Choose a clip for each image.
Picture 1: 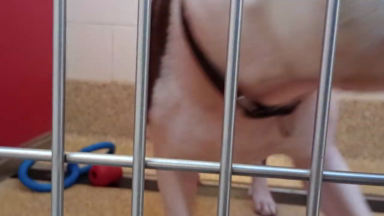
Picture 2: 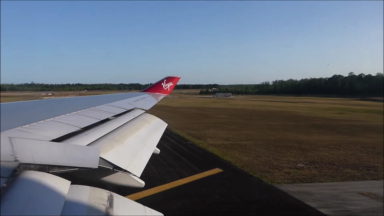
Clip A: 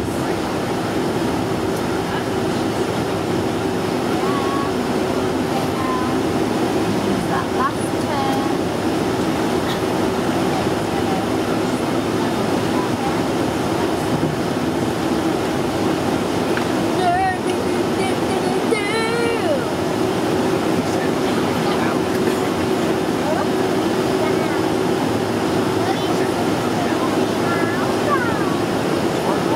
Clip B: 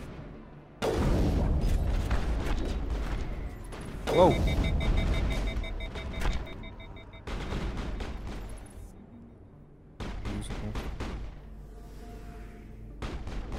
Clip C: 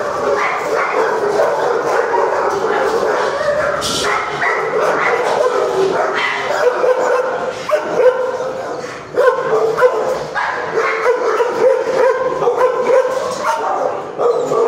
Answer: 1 C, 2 A